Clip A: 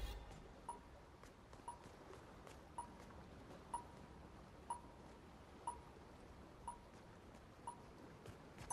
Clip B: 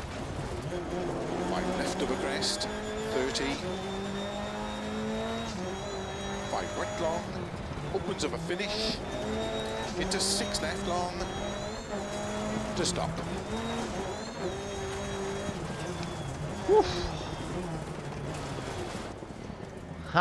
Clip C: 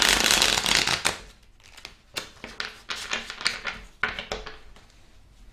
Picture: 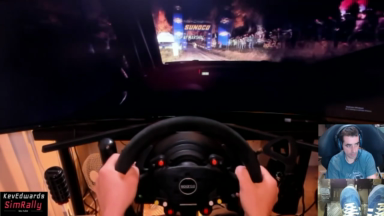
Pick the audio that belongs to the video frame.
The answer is B